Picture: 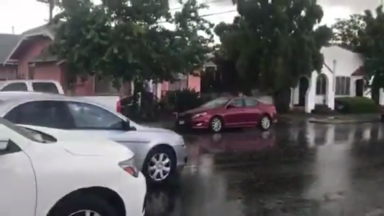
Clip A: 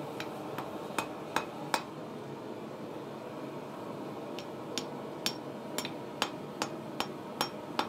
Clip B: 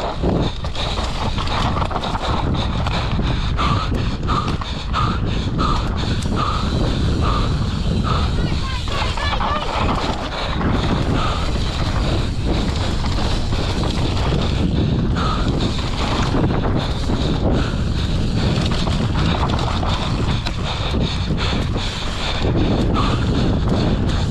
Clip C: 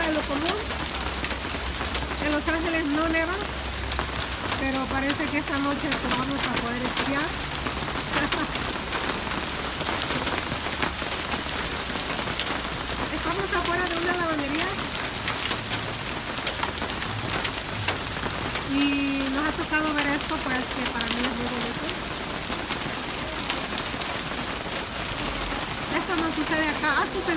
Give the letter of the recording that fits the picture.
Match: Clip C